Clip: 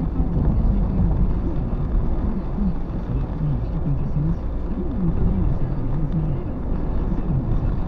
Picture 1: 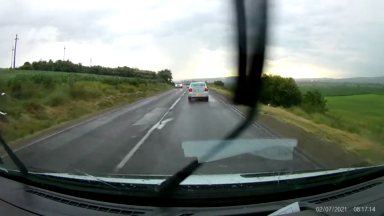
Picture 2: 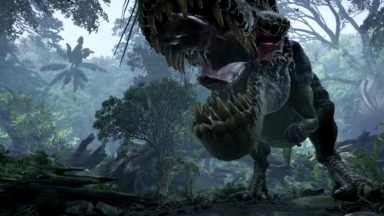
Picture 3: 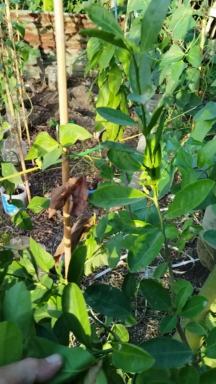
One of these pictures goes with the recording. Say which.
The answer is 1